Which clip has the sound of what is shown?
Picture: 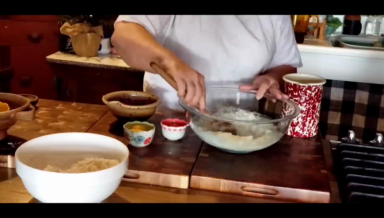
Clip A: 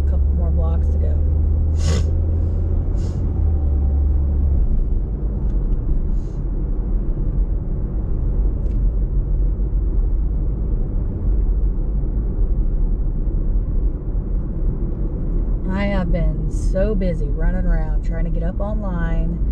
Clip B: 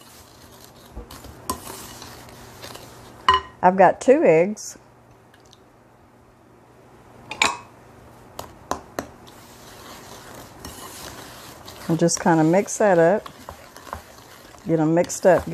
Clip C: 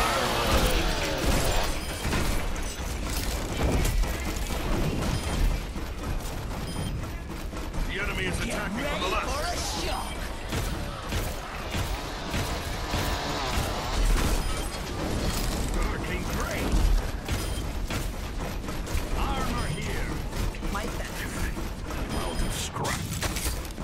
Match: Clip B